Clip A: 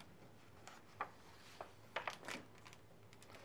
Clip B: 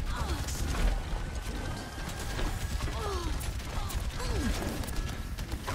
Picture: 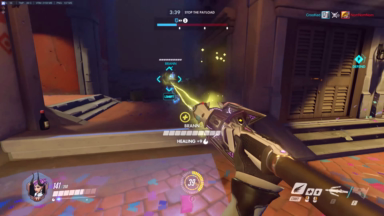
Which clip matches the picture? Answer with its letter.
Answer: B